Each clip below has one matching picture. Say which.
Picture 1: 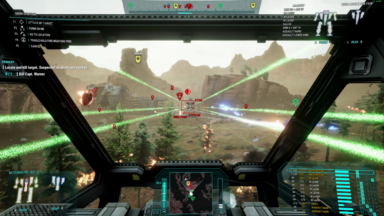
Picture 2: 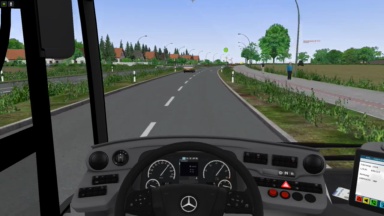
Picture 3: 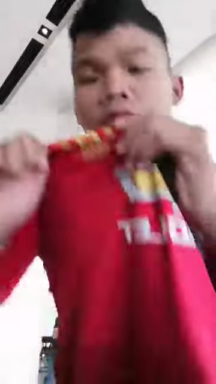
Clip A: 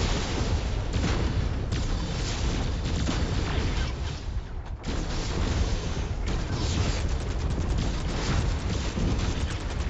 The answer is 1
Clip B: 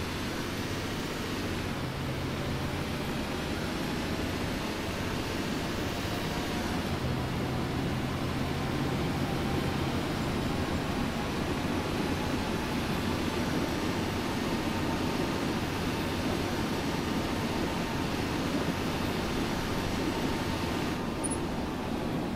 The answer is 2